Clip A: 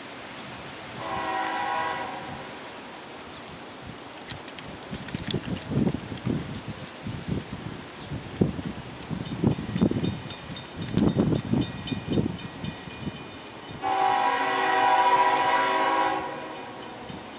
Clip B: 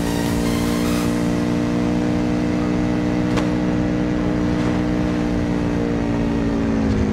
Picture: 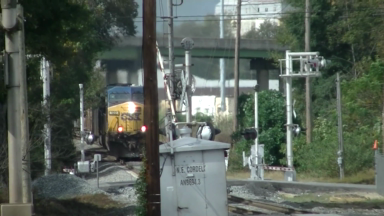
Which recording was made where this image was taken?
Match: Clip A